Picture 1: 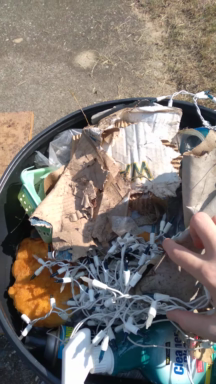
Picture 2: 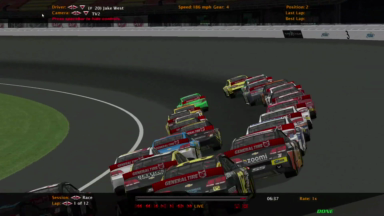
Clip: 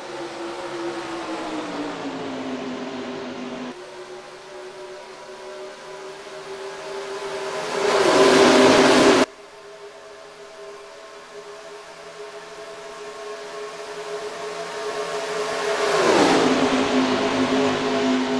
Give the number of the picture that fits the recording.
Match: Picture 2